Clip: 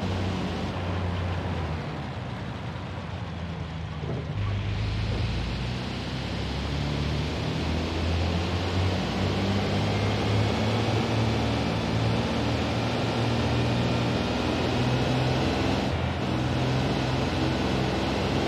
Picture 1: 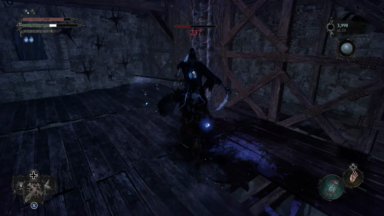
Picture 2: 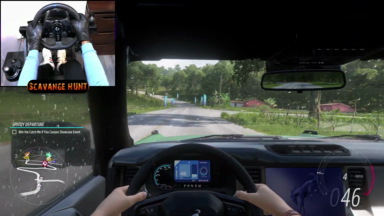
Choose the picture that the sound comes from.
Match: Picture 2